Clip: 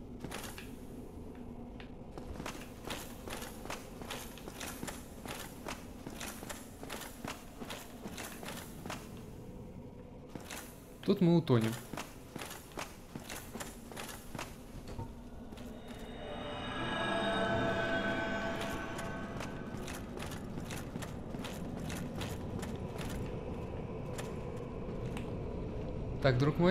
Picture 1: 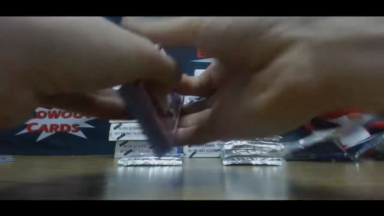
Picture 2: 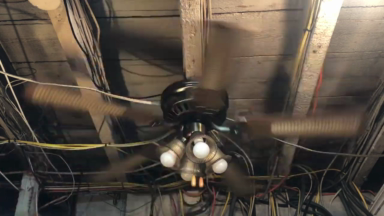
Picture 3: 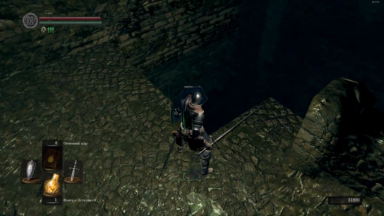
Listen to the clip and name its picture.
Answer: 3